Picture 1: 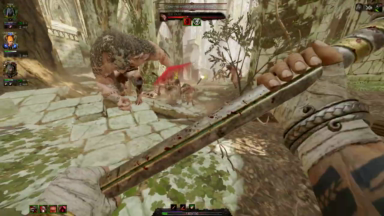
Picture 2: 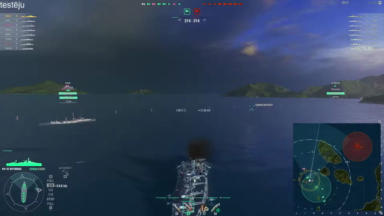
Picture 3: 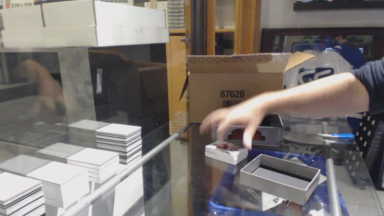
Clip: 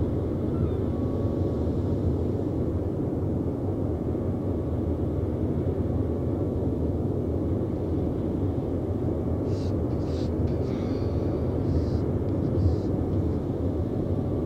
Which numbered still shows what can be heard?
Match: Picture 2